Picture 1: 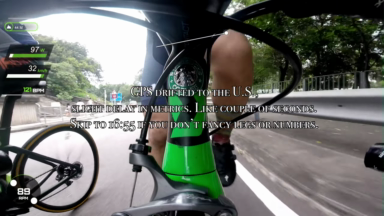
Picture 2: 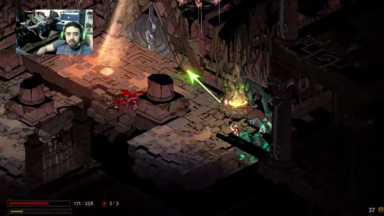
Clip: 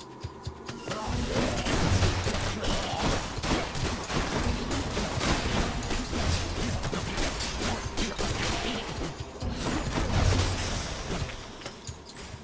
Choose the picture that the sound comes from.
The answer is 2